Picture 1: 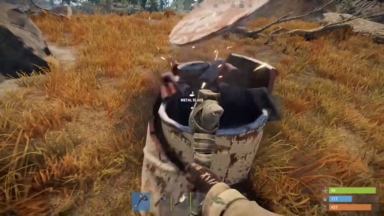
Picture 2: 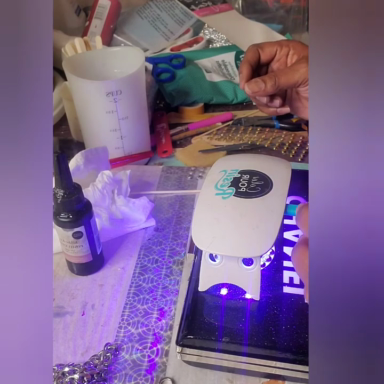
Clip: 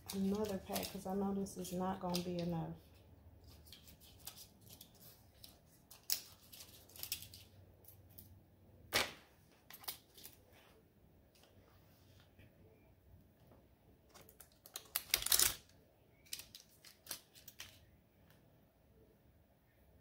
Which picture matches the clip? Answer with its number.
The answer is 2